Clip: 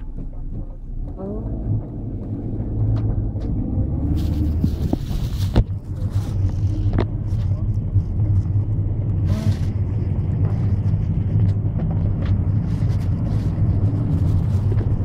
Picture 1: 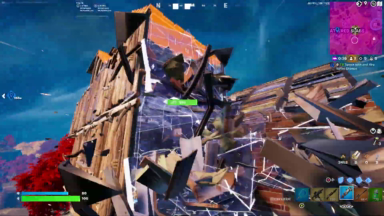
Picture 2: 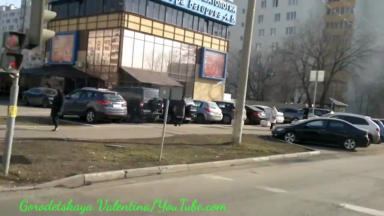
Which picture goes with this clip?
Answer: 2